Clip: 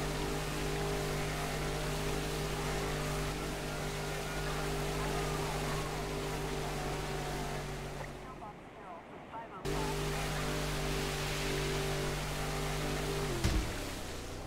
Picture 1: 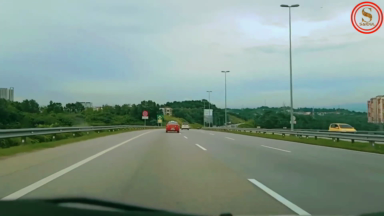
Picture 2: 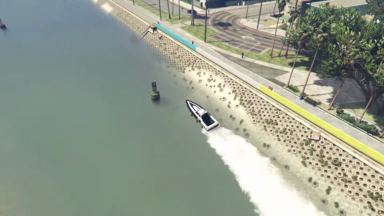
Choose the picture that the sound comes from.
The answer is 2